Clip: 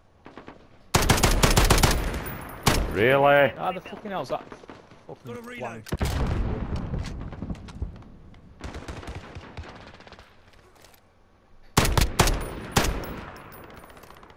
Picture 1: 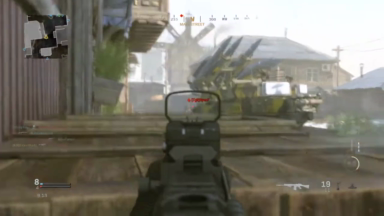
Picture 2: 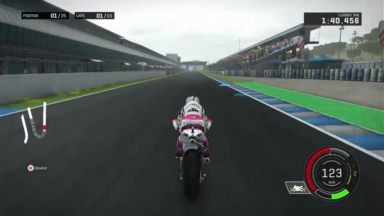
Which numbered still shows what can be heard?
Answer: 1